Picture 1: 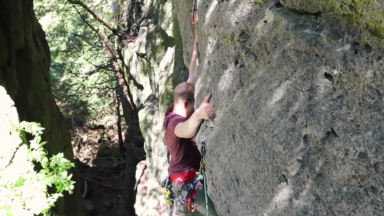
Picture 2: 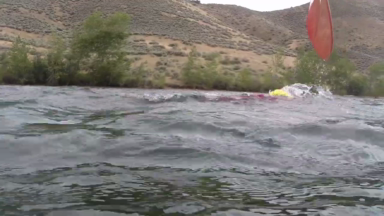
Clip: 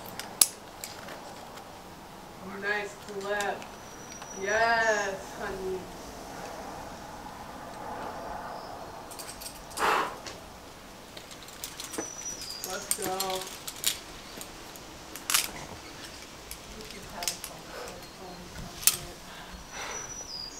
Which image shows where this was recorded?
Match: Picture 1